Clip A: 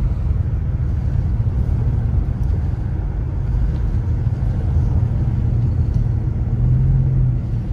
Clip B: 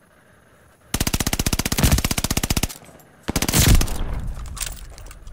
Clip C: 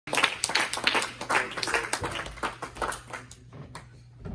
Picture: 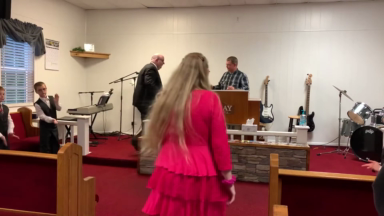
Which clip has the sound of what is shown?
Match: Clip C